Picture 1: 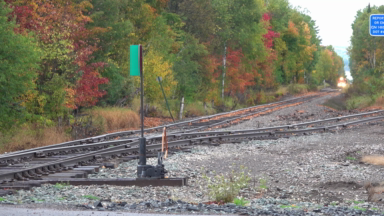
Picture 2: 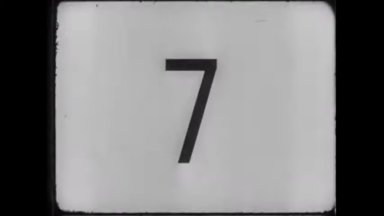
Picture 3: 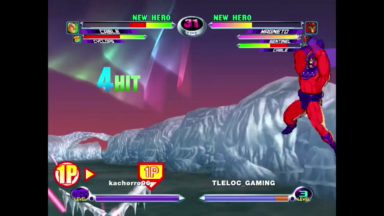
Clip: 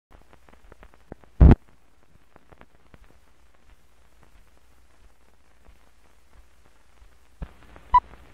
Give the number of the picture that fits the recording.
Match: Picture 2